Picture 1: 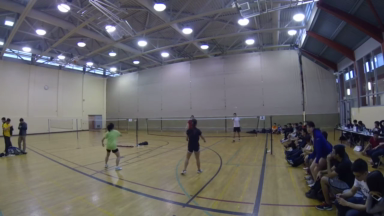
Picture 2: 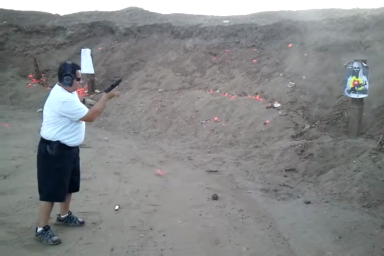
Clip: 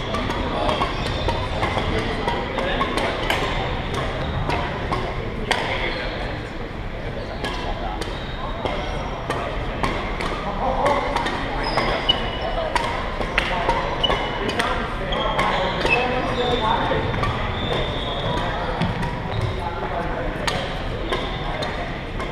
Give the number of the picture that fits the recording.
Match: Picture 1